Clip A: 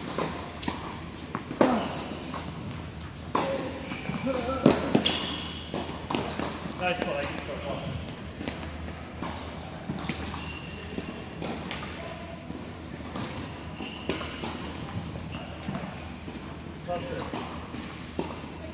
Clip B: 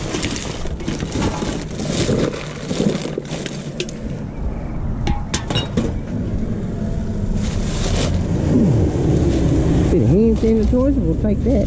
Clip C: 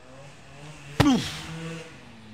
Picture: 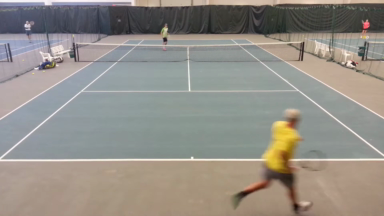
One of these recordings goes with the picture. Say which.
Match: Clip A